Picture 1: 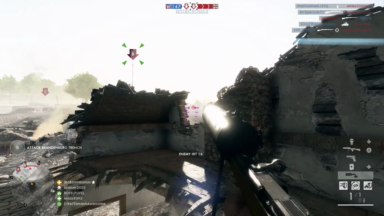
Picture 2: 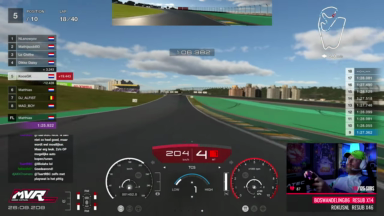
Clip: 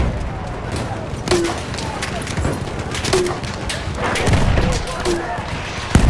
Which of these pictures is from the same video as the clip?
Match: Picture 1